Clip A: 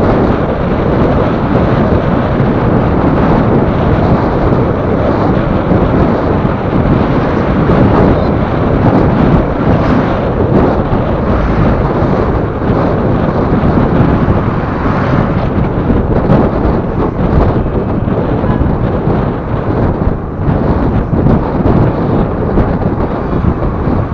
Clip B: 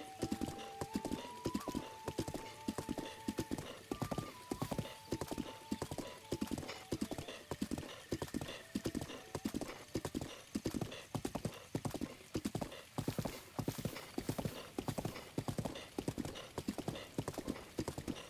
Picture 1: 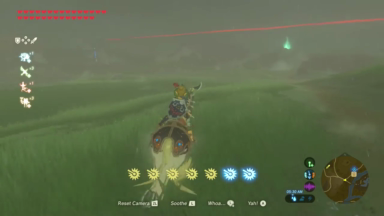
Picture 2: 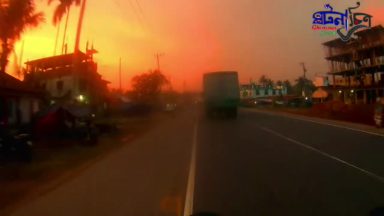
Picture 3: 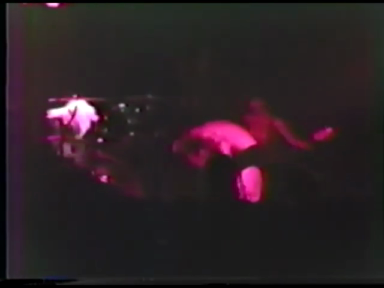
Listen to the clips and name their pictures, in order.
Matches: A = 2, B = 1